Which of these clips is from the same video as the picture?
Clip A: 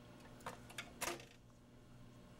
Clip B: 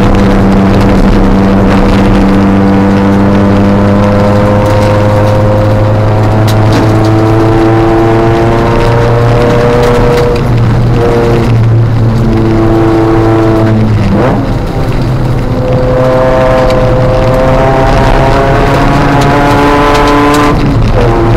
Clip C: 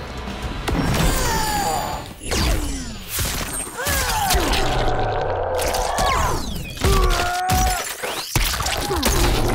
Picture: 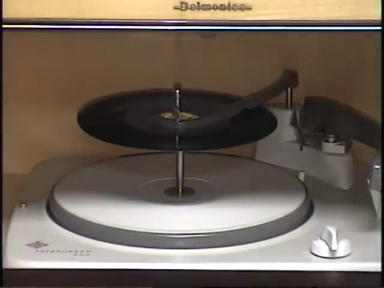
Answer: A